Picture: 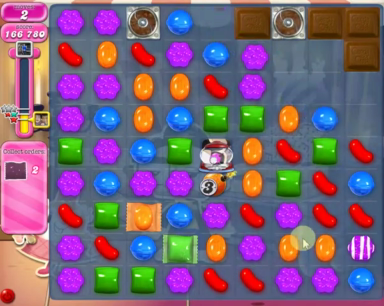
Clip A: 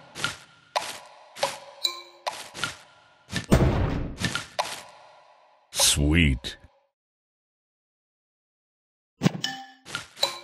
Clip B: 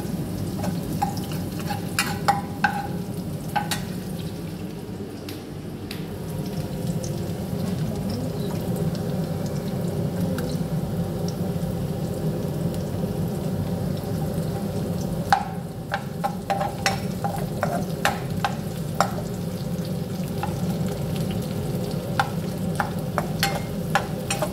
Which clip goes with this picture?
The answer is A